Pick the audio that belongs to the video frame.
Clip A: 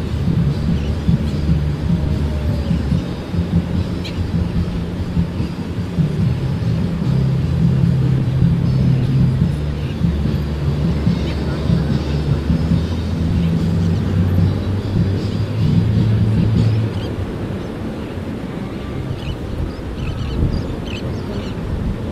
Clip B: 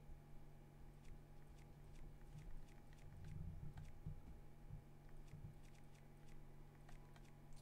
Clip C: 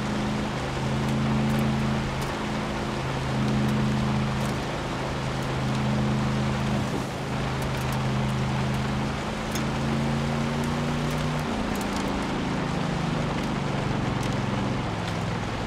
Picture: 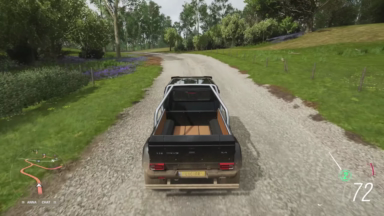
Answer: C